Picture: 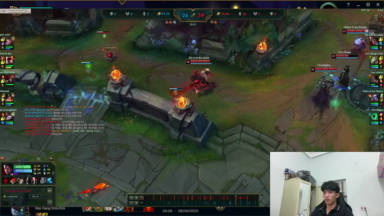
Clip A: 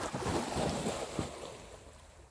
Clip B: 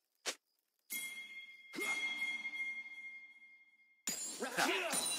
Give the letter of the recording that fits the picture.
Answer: B